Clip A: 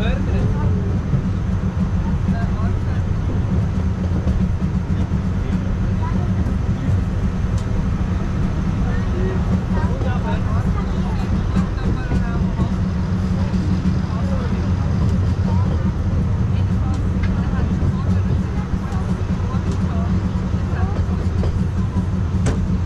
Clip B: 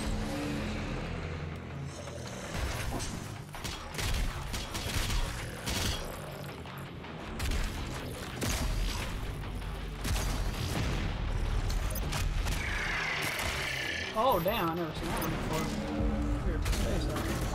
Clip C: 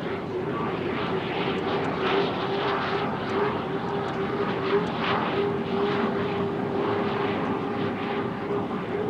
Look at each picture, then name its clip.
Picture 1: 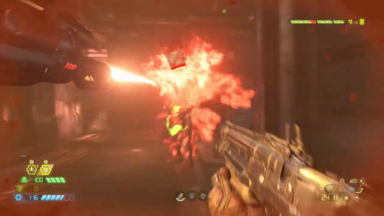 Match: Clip B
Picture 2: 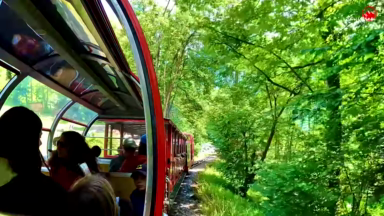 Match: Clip A